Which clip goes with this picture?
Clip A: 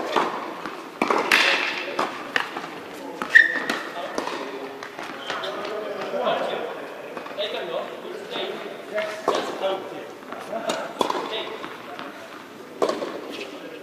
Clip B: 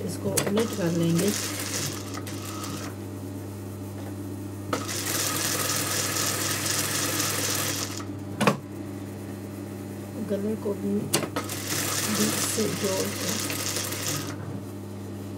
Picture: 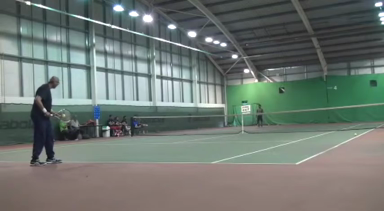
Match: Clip A